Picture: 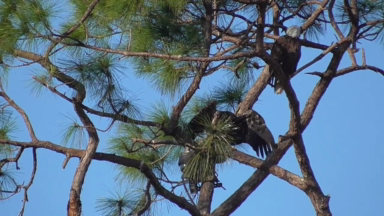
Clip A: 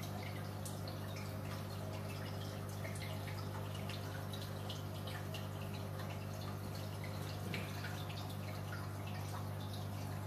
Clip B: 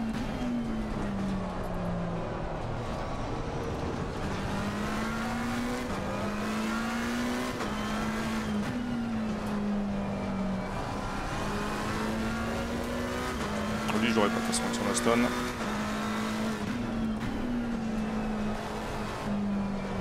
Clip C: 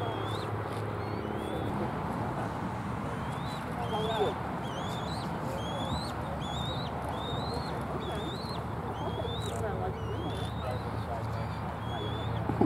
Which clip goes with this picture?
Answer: C